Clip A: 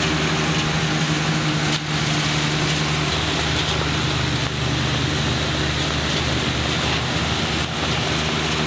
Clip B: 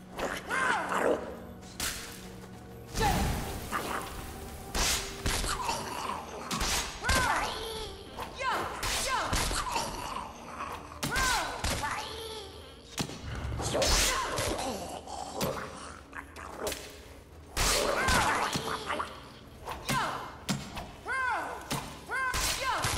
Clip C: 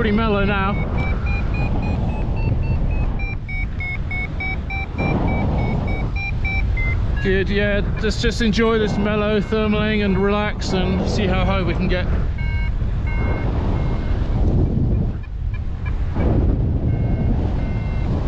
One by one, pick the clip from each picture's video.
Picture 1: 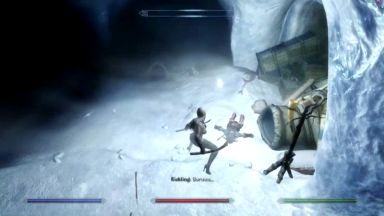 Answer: B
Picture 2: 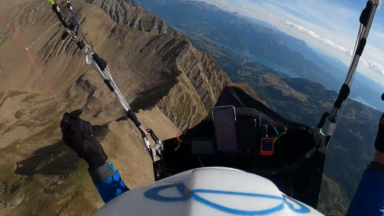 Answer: C